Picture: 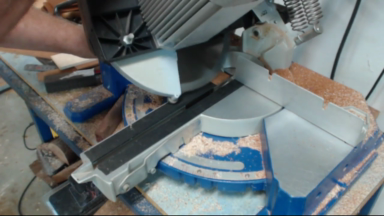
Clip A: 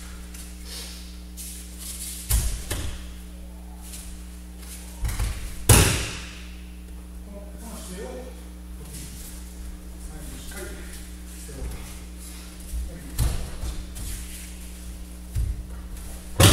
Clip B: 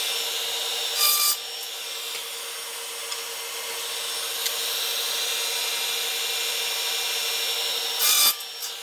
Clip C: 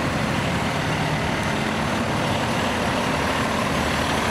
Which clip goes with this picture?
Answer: B